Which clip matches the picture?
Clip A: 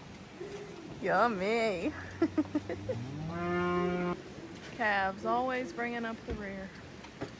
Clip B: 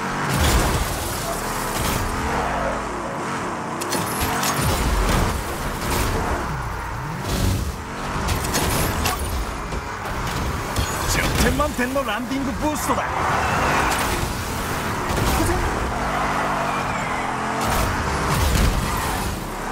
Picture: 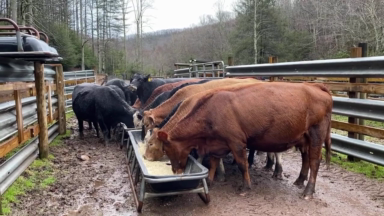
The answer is A